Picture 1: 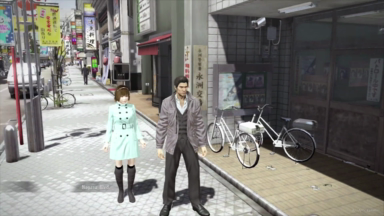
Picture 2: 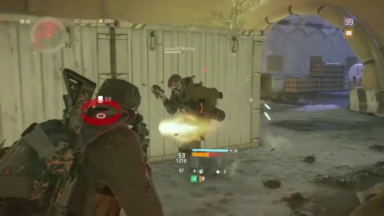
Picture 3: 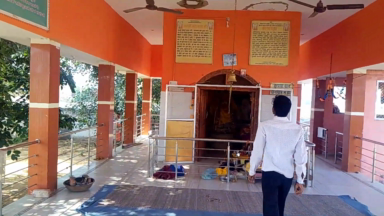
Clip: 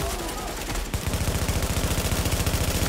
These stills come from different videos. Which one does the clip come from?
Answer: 2